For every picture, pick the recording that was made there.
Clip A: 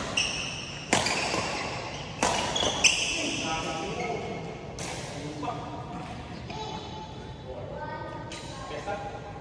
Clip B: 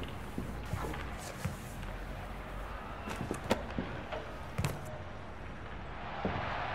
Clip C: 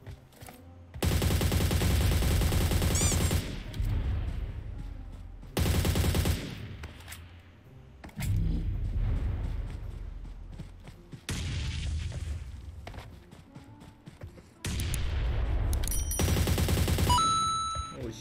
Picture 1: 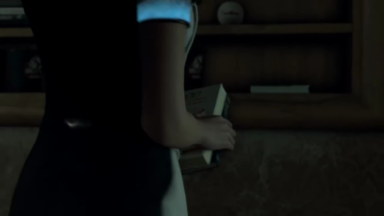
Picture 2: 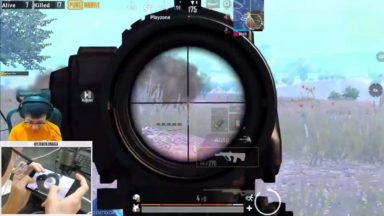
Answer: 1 B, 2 C